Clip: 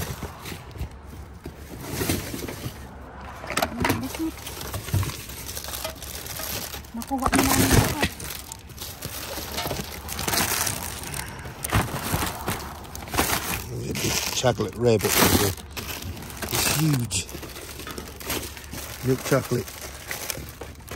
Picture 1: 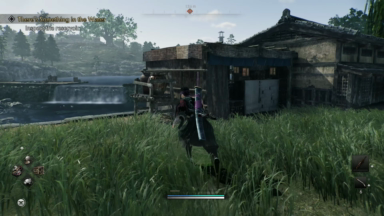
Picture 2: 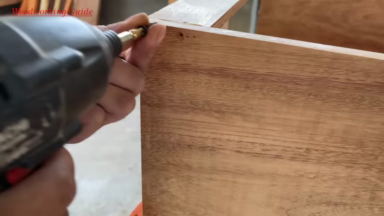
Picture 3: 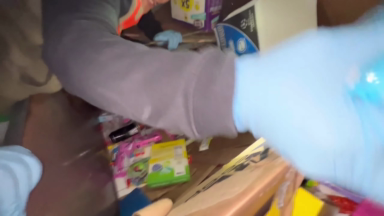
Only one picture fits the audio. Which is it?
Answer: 3